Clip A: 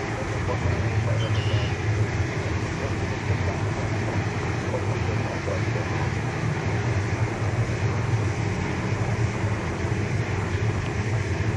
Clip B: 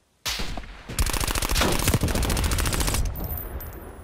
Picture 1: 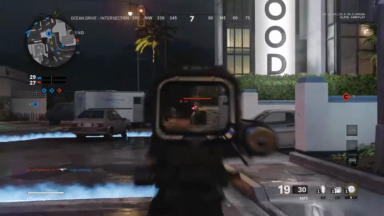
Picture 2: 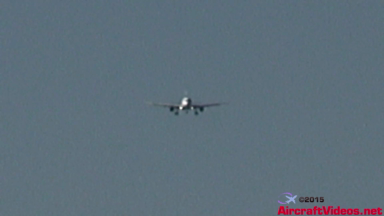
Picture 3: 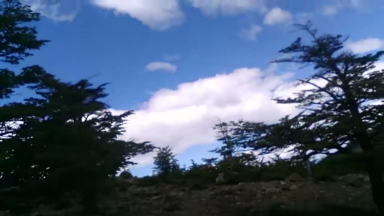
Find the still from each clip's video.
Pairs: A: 2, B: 1